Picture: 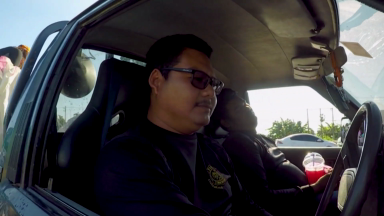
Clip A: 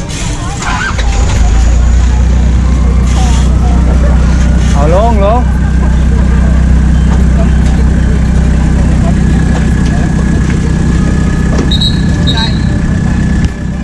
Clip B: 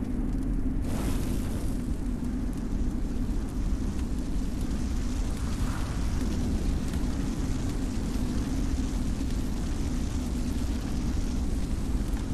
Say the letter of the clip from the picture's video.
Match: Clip A